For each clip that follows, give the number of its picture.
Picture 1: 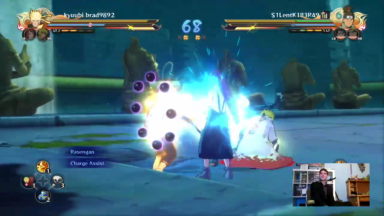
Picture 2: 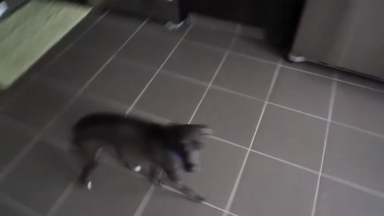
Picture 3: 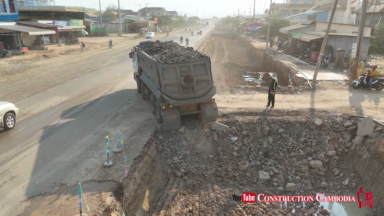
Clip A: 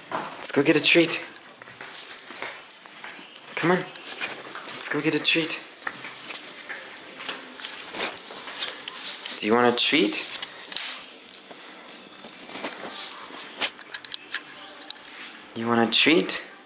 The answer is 2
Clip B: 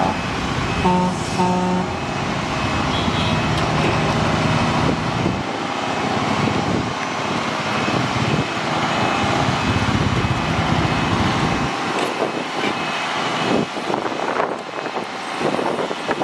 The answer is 3